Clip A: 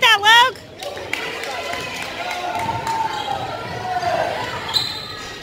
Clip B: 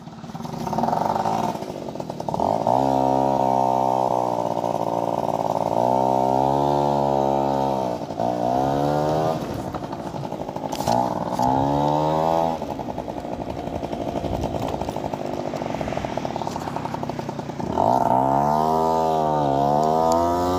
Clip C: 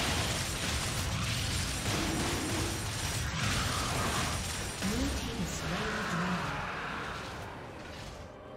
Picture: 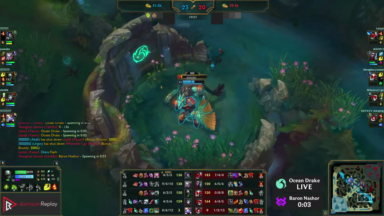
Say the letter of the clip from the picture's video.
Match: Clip C